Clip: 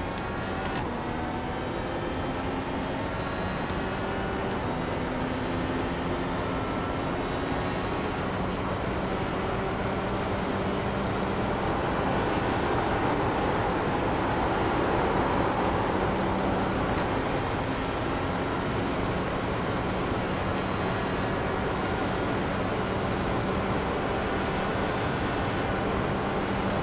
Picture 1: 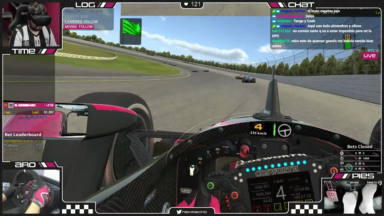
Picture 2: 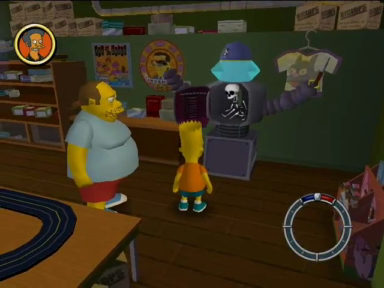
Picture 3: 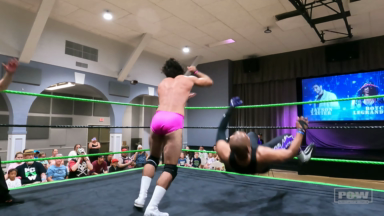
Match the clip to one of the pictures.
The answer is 1